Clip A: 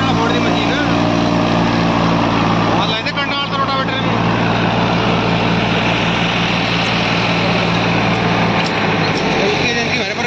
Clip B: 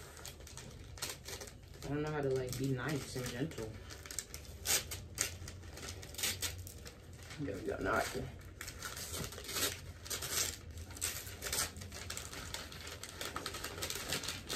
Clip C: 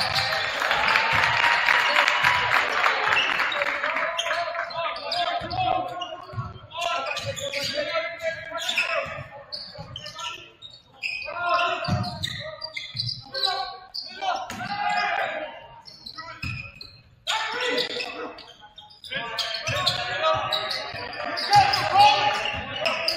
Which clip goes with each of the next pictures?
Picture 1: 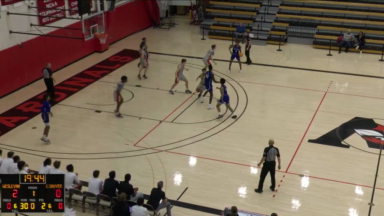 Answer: C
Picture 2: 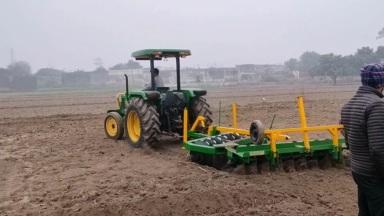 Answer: A